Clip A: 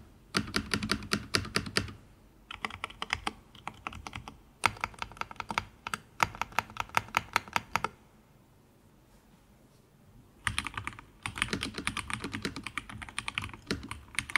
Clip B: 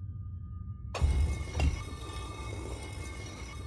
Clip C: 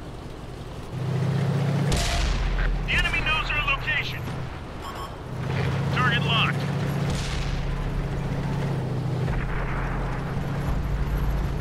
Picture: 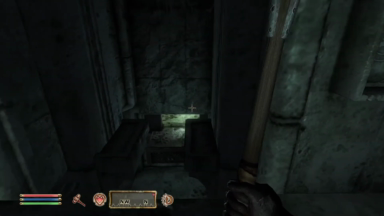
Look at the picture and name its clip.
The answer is B